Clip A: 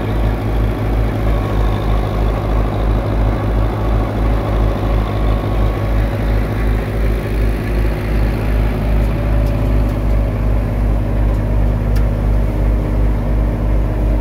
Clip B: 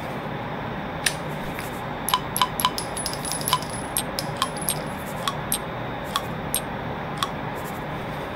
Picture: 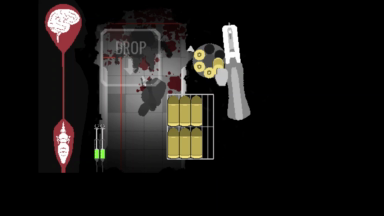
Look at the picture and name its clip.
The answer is B